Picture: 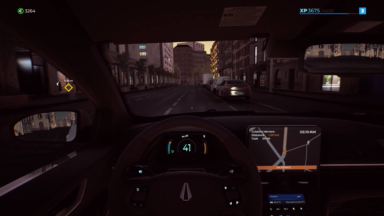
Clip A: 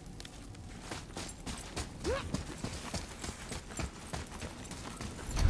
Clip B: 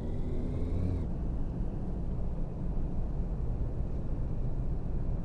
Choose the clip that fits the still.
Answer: B